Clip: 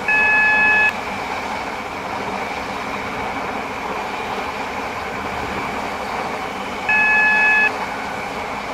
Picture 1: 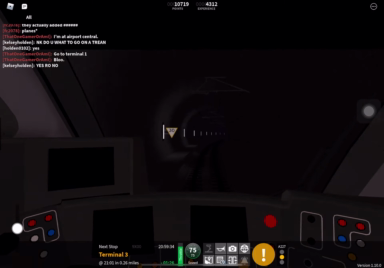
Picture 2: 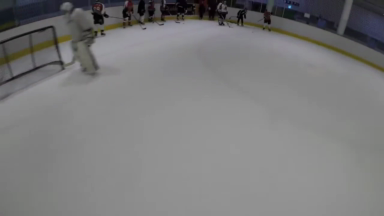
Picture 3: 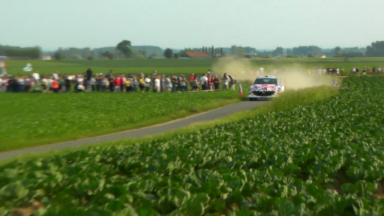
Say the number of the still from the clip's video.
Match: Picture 1